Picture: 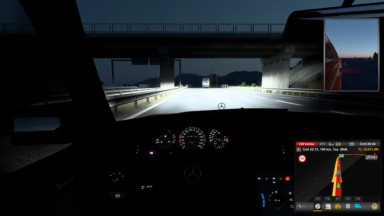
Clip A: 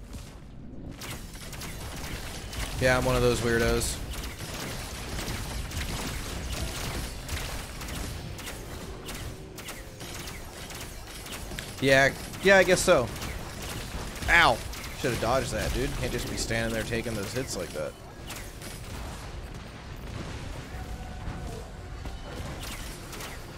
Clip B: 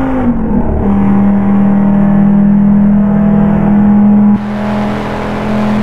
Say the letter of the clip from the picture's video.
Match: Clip B